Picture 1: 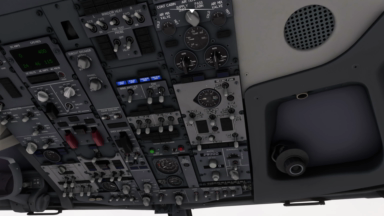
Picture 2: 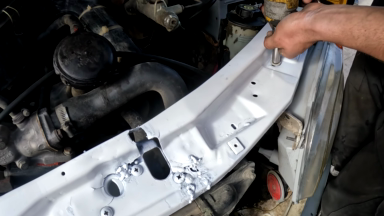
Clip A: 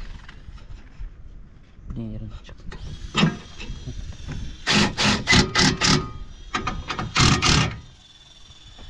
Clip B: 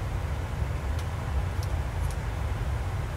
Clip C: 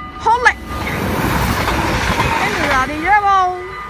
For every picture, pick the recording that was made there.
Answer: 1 B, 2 A